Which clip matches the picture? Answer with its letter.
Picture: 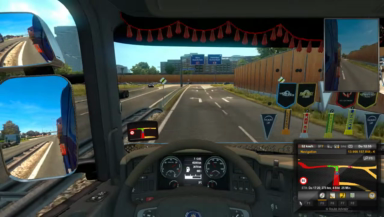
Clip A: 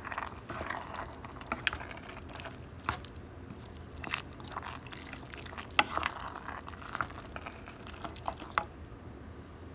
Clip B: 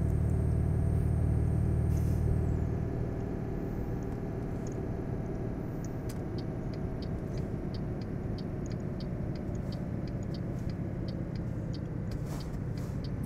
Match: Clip B